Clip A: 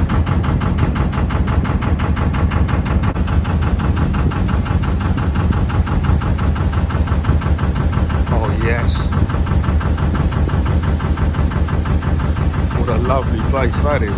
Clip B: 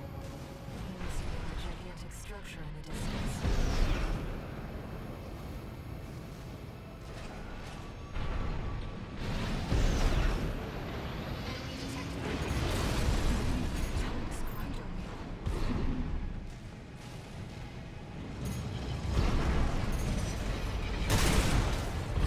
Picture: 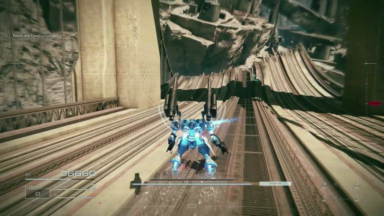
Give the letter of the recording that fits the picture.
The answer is B